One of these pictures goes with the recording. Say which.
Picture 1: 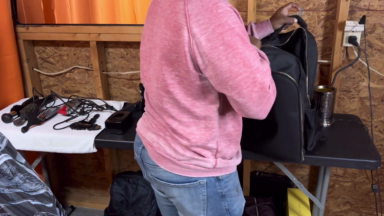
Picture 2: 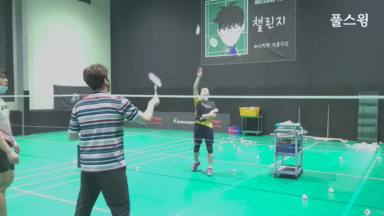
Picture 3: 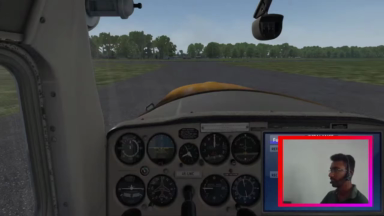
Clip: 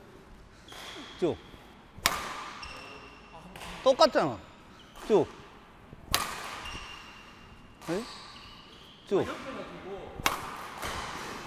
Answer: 2